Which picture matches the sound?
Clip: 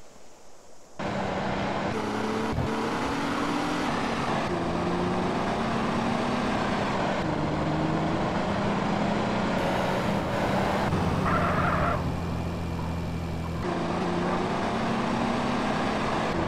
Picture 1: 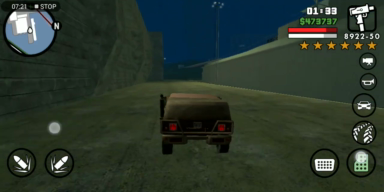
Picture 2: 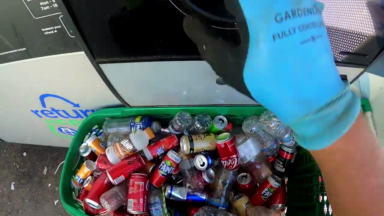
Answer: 1